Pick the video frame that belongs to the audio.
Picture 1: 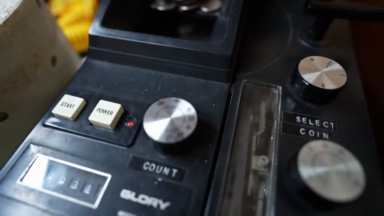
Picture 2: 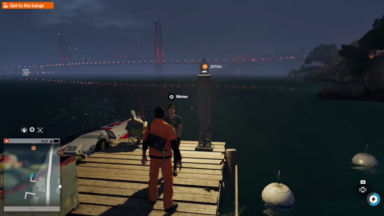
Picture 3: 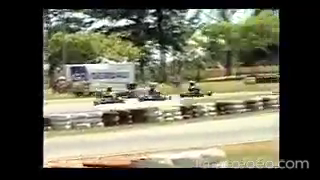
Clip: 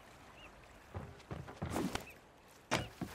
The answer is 2